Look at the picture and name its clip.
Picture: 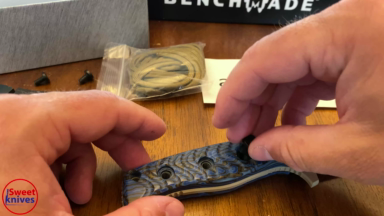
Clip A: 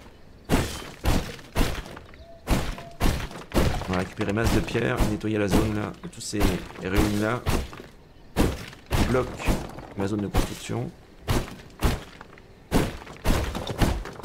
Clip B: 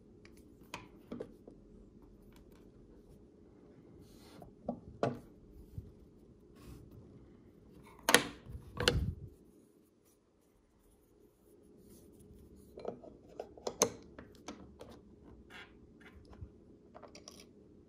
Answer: B